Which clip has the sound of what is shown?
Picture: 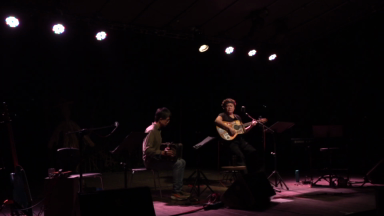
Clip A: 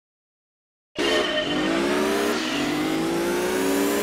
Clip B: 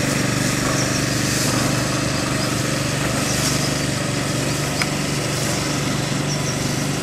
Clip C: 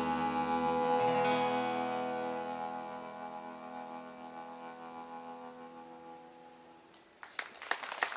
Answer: C